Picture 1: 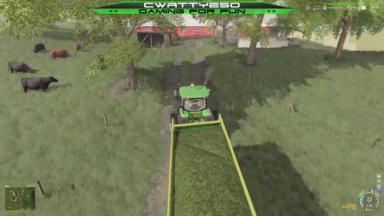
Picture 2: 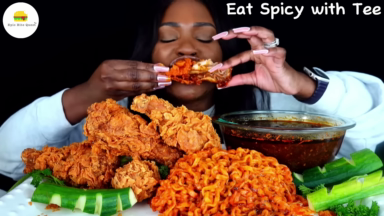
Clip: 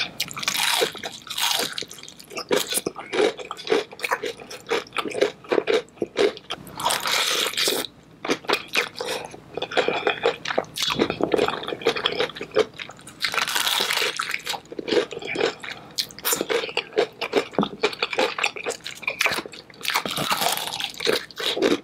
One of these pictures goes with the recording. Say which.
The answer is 2